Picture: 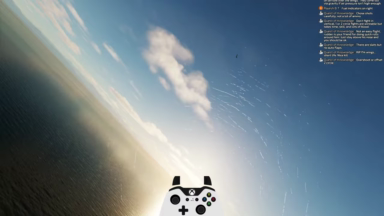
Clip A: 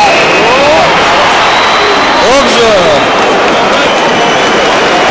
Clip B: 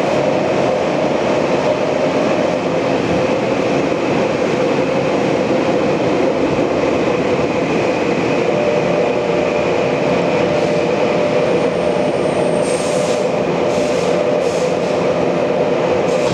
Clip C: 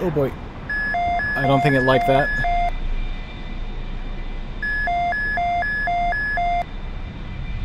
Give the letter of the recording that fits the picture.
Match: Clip C